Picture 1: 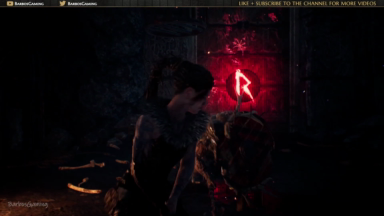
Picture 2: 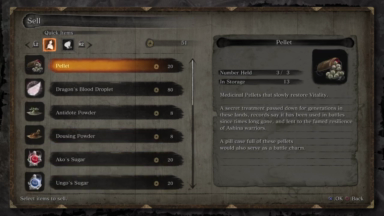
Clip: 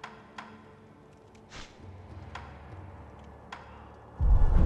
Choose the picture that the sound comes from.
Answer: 2